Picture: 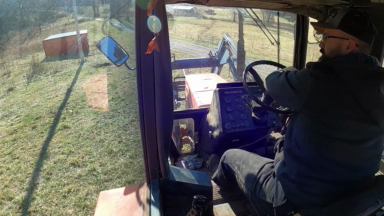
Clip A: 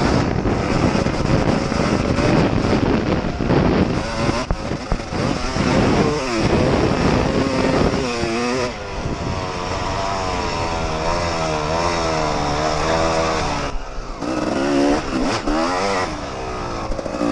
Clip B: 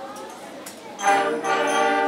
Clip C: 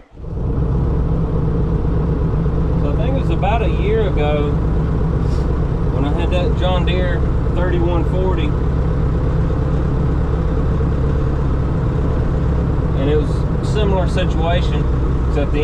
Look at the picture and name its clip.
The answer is C